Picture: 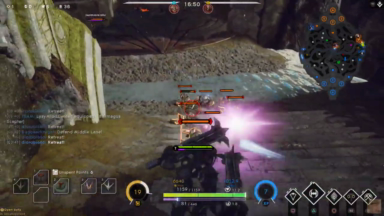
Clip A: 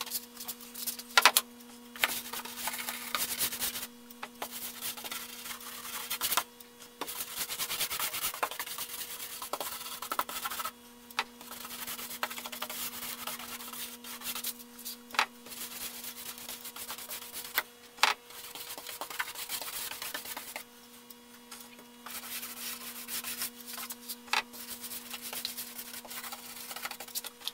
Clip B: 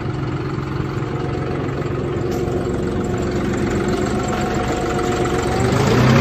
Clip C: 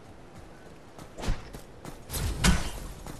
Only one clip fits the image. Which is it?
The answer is C